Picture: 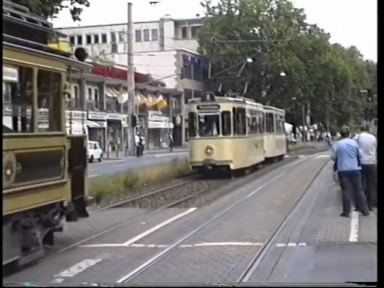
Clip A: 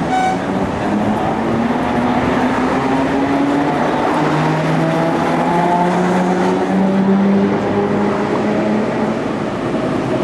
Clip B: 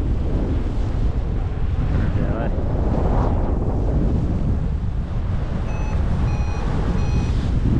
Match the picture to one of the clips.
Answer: A